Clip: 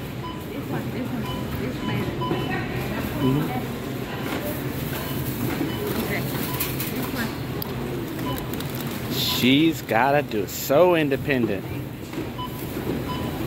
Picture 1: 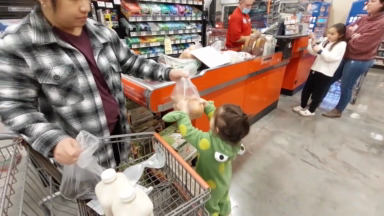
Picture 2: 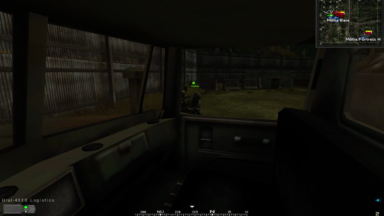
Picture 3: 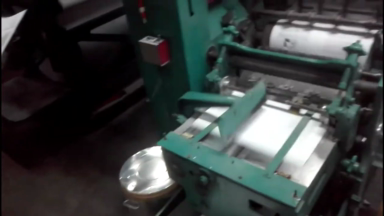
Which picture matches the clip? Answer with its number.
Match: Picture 1